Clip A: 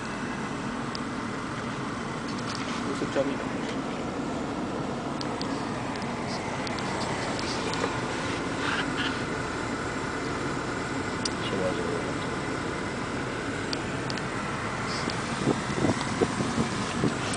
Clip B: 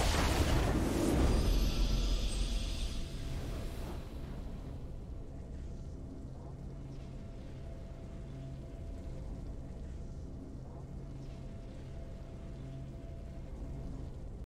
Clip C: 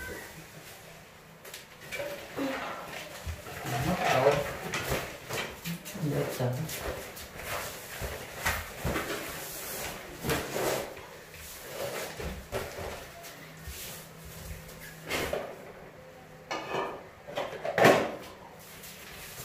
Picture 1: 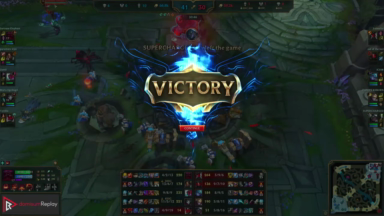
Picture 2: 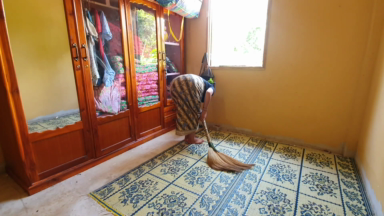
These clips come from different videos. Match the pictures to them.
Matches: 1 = B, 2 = C